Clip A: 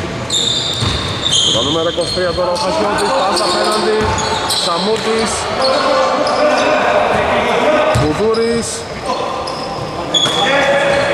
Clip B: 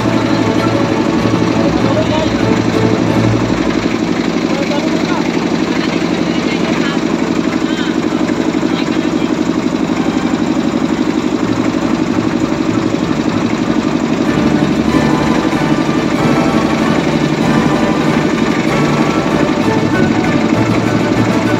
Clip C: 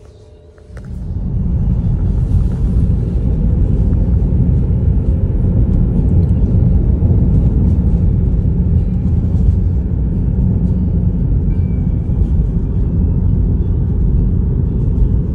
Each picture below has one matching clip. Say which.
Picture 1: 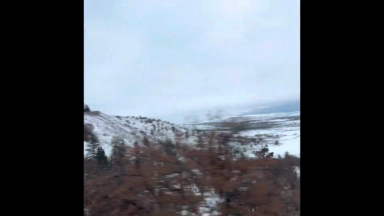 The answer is C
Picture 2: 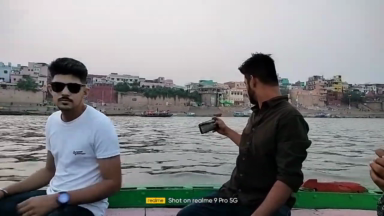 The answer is B